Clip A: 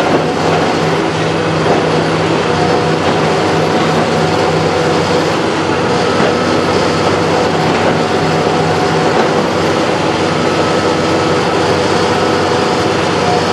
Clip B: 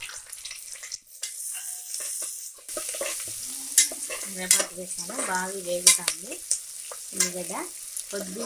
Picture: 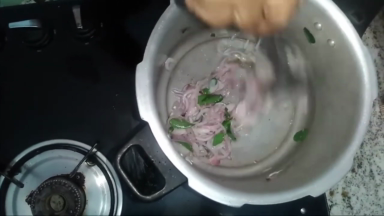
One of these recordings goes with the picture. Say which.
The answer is B